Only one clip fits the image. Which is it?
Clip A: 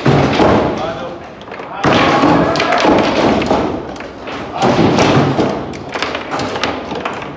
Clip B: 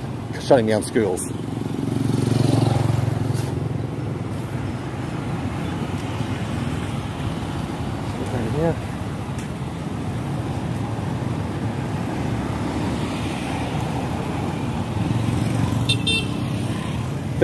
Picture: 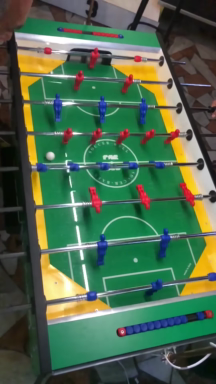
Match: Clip A